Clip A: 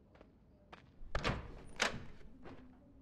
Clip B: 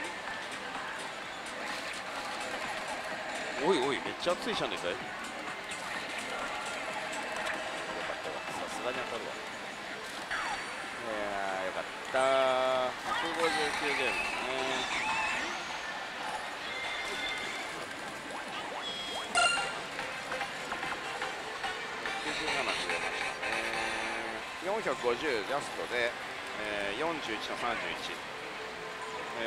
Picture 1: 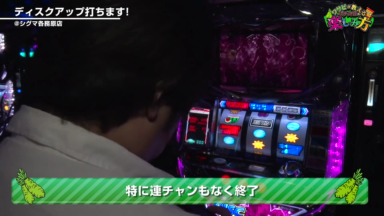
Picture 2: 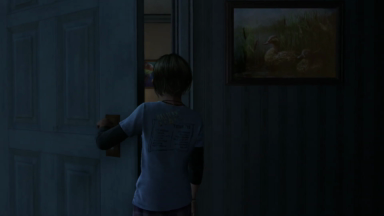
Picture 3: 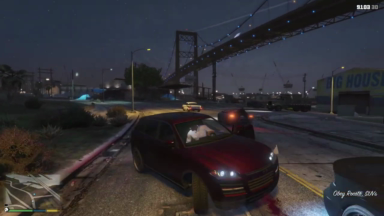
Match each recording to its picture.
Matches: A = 2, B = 1